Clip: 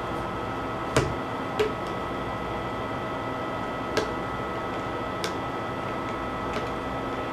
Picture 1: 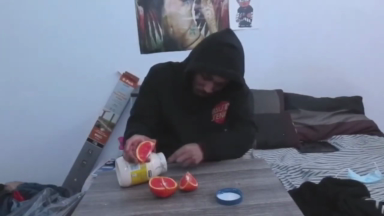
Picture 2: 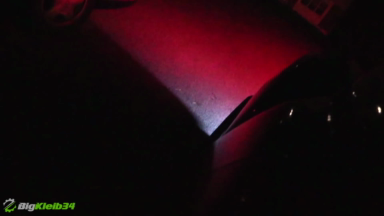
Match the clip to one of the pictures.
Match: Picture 1